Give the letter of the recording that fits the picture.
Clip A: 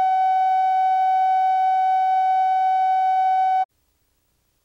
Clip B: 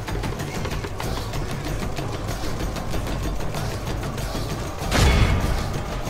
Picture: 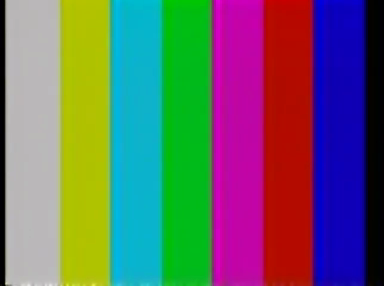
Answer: A